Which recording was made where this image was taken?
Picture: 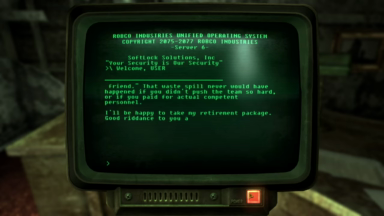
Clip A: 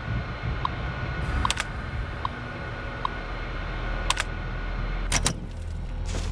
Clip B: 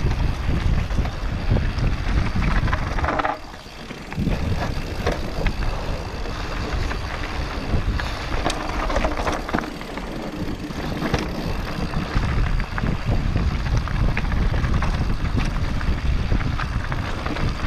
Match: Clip A